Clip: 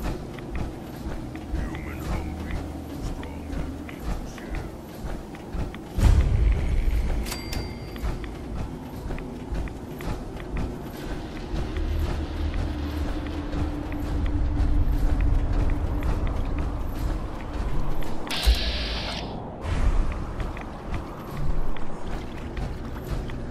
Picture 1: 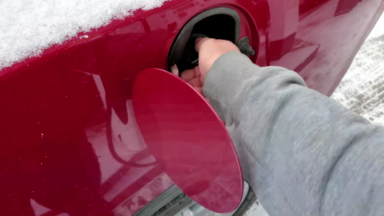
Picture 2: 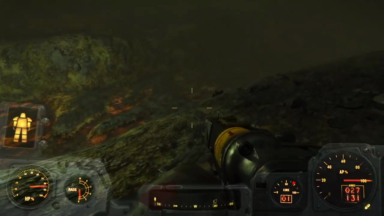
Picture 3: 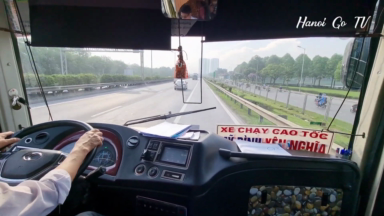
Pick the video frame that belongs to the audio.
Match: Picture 2